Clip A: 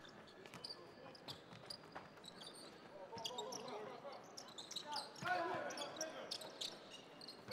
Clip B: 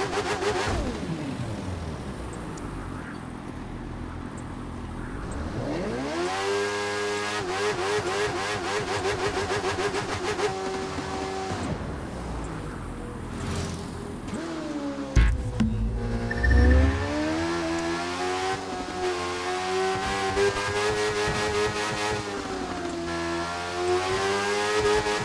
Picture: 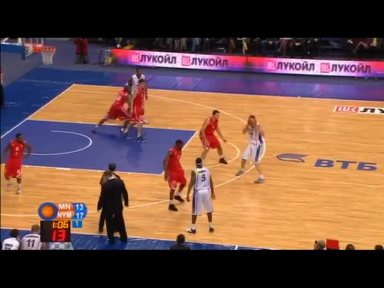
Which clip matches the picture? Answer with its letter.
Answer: A